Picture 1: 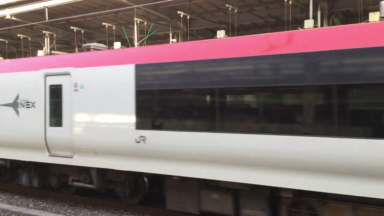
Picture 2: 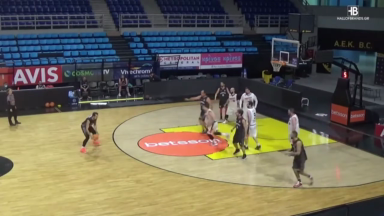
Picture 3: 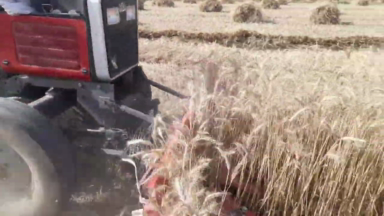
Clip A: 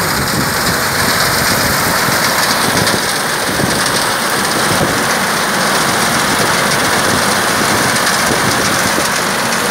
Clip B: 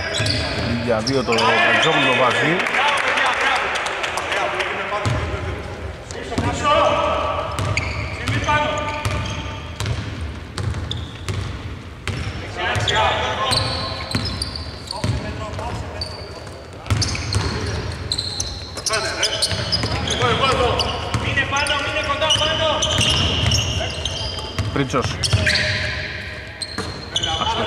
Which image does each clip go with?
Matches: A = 3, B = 2